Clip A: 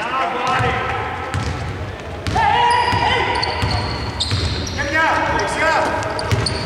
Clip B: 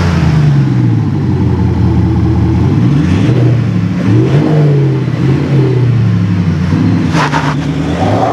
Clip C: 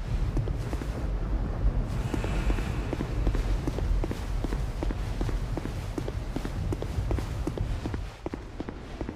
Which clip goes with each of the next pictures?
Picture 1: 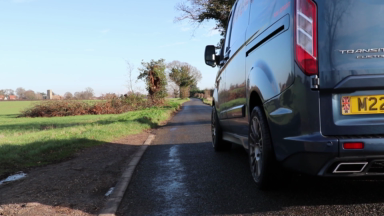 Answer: B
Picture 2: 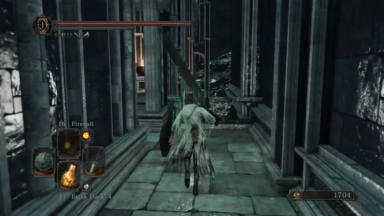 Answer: C